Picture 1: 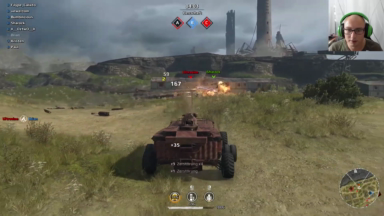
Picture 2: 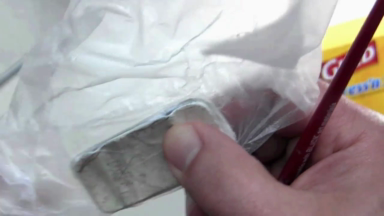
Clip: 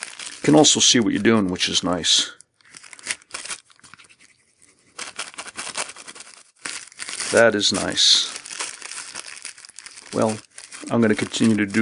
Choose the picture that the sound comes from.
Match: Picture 2